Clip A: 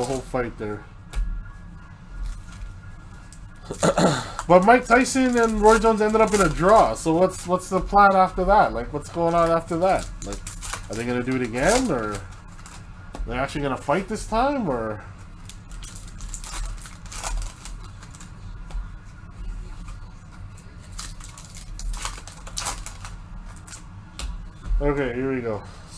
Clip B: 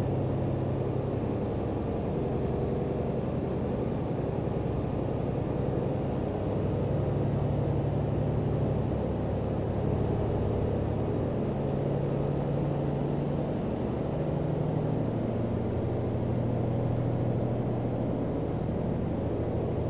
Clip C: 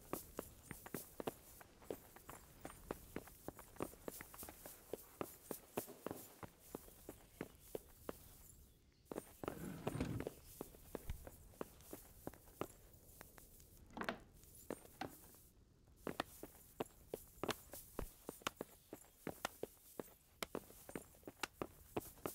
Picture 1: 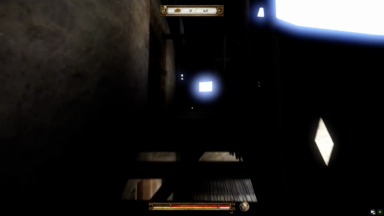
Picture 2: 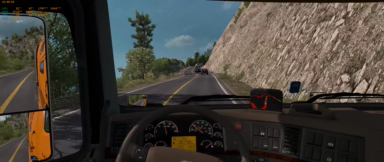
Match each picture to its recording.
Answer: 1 C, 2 B